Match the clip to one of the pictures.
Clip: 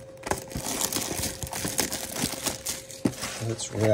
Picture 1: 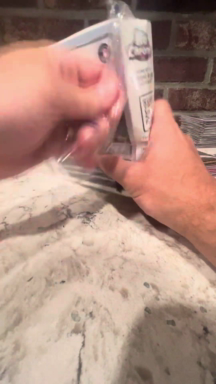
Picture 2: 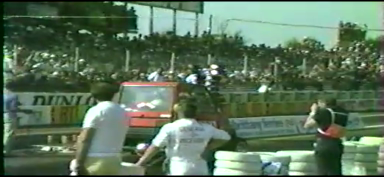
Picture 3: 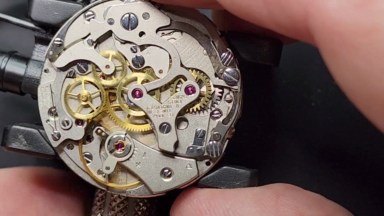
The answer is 1